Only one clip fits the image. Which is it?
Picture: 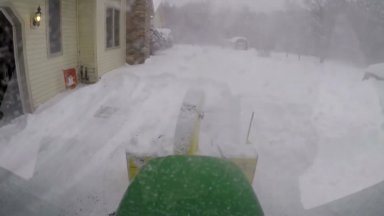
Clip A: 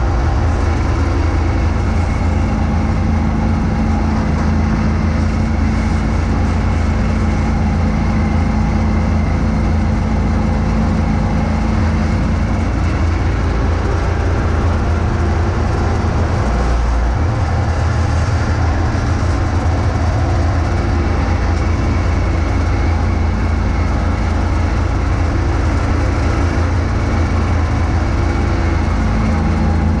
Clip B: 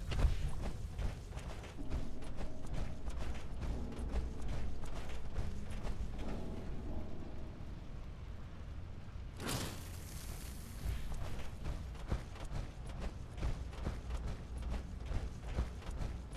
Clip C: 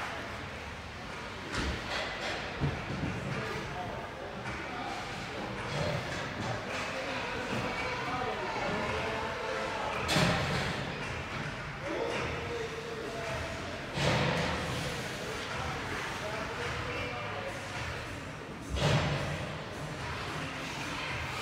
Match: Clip A